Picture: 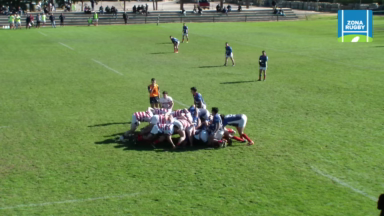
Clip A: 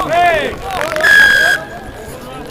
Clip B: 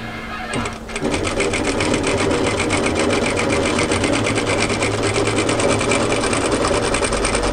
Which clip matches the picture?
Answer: A